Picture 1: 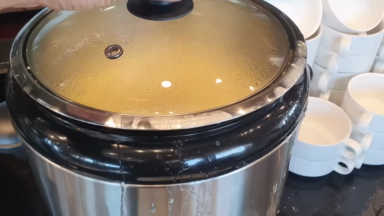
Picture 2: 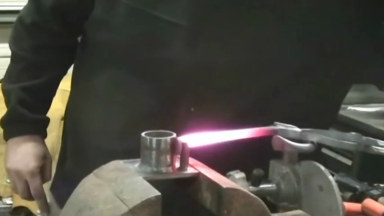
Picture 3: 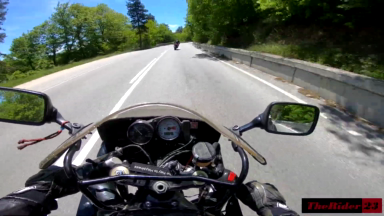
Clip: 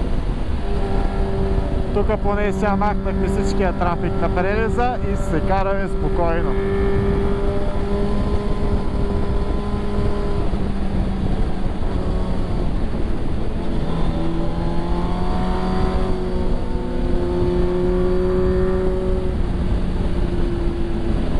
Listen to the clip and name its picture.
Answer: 3